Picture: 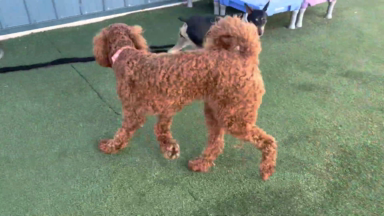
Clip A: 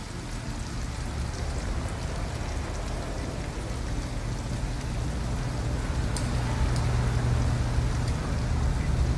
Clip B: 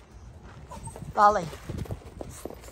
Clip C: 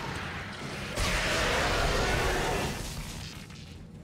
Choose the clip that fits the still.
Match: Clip B